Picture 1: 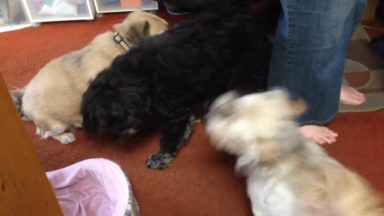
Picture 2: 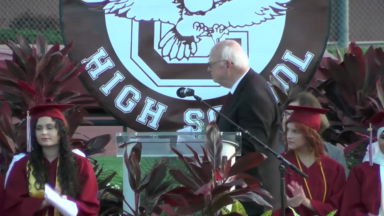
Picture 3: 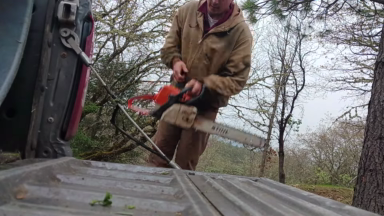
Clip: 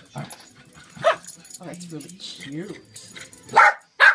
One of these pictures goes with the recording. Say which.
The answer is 1